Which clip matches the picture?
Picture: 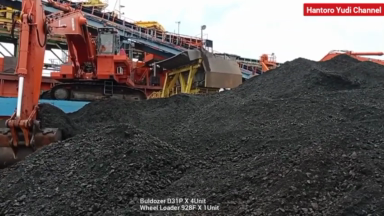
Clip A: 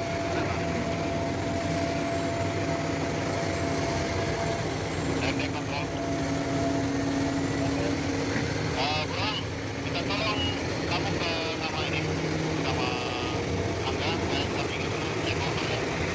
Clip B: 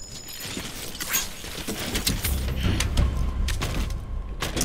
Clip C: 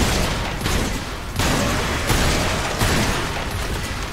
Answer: A